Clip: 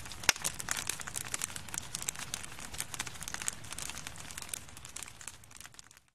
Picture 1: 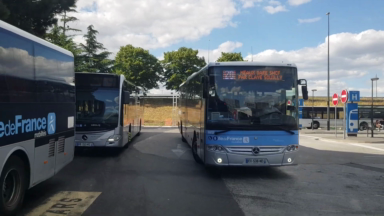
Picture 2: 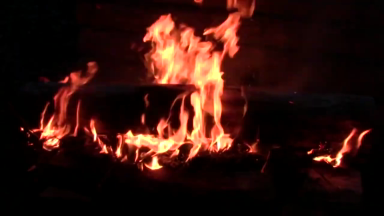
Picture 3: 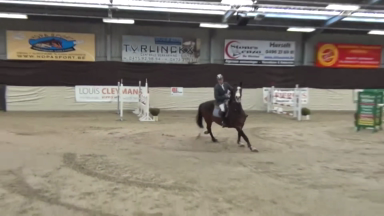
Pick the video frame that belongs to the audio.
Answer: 2